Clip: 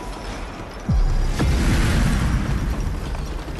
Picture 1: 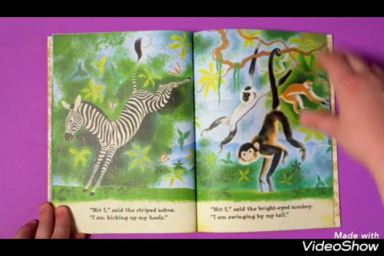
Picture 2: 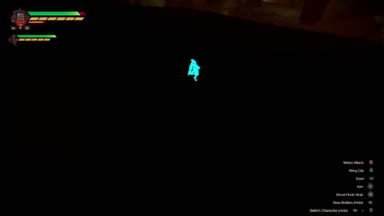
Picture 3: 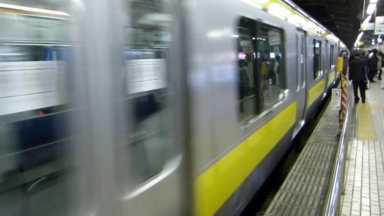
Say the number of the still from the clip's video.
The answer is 2